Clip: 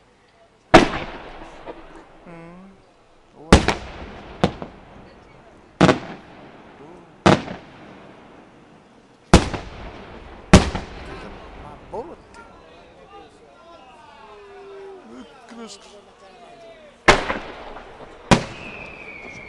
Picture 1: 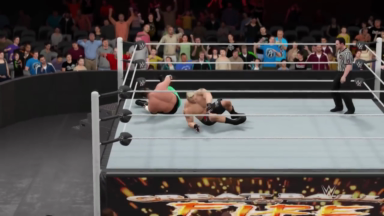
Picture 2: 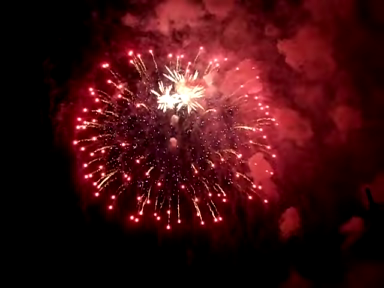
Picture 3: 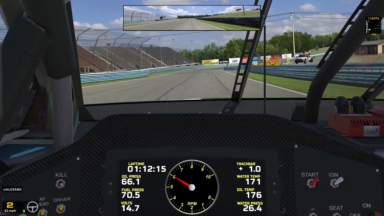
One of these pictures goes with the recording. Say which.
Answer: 2